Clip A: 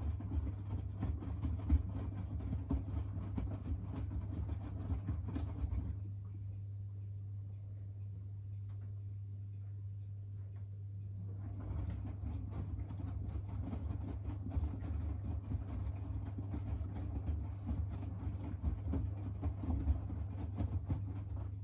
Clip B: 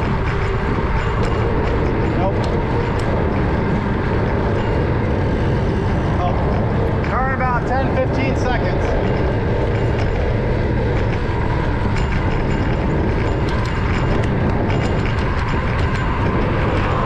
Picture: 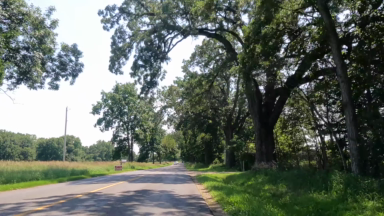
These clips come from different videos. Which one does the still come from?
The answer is B